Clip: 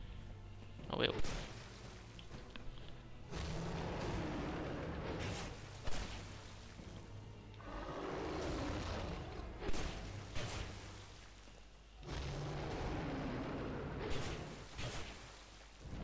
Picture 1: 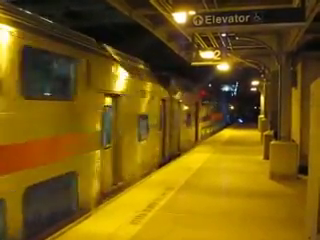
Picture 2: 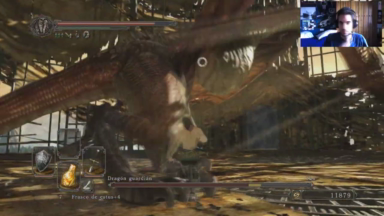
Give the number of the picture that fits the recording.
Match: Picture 2